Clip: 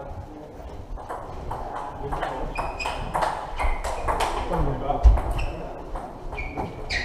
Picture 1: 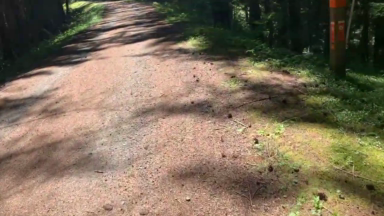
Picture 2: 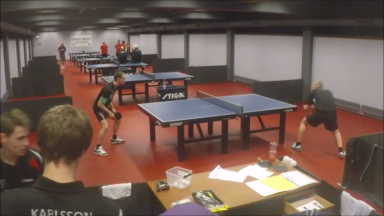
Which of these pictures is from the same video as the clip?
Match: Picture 2